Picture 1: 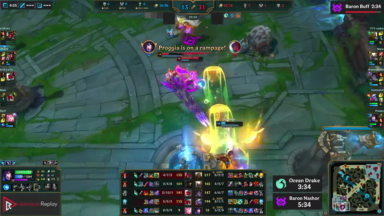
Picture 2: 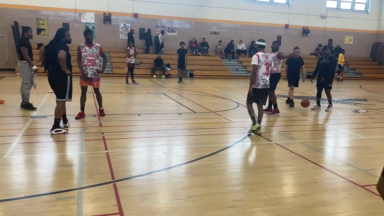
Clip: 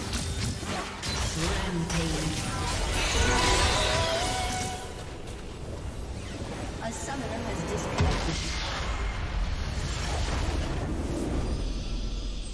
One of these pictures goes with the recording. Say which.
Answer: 1